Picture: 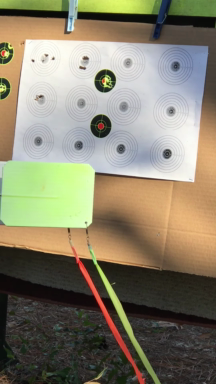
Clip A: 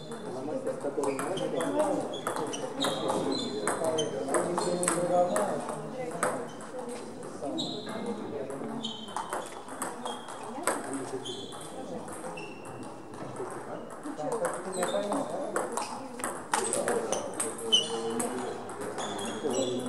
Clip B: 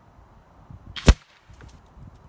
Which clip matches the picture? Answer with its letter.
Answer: B